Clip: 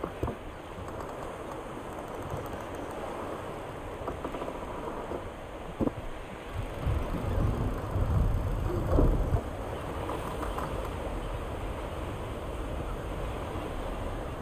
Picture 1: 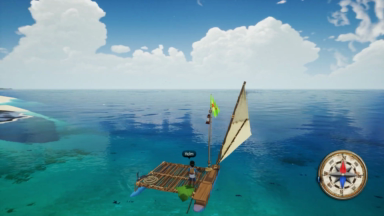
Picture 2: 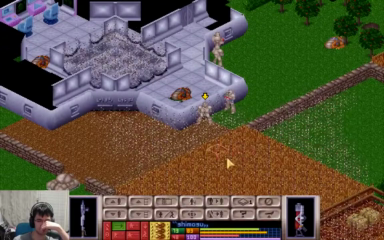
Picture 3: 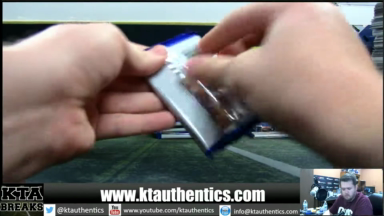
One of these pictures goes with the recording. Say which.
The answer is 1